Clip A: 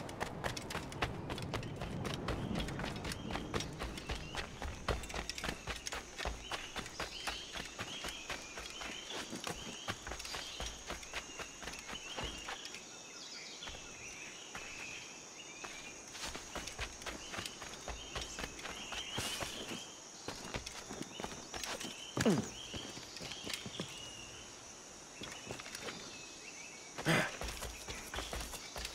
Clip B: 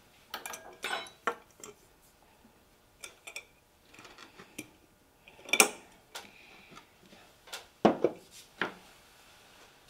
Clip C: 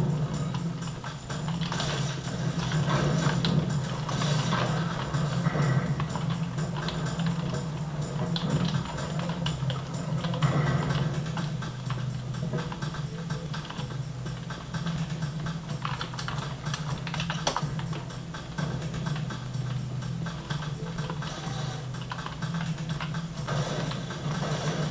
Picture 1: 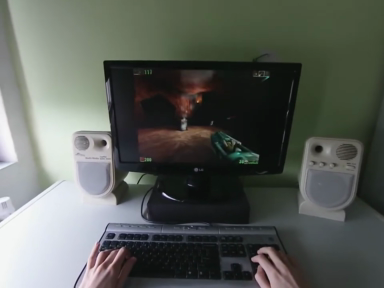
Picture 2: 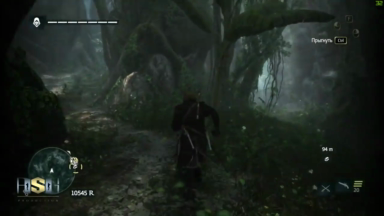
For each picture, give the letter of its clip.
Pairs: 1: C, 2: A